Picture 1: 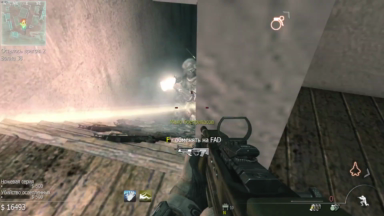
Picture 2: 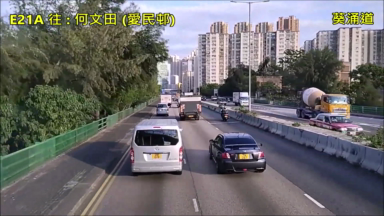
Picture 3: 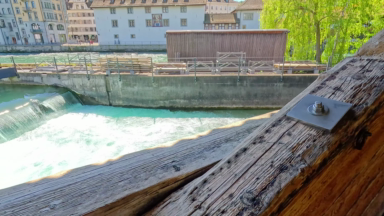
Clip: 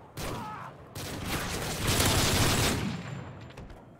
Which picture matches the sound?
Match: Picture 1